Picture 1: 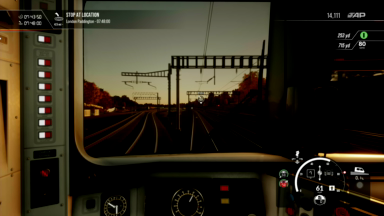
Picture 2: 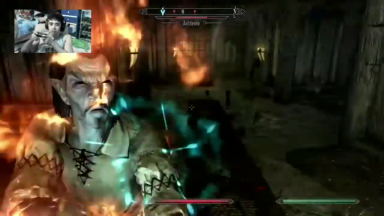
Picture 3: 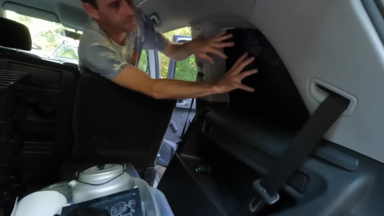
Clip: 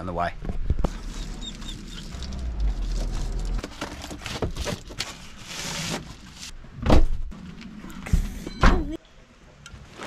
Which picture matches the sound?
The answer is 3